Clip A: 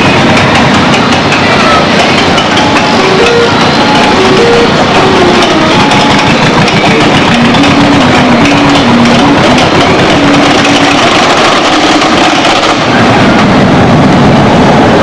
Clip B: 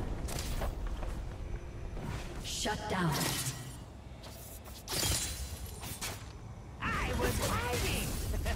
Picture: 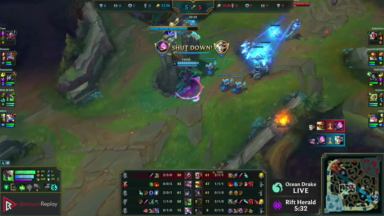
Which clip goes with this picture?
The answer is B